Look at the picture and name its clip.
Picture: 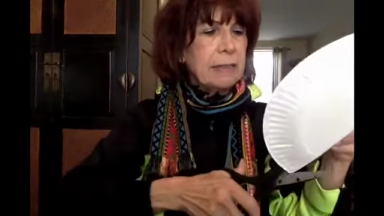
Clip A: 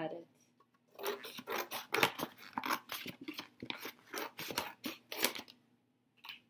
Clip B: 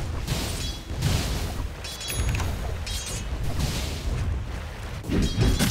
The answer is A